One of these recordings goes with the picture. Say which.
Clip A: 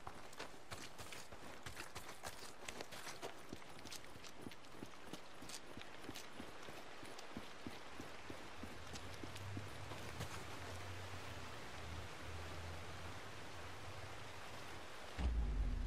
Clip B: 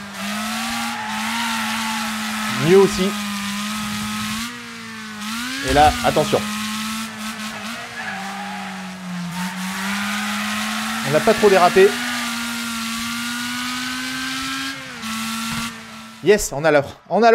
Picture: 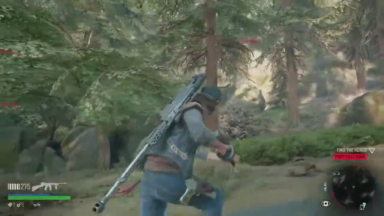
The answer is A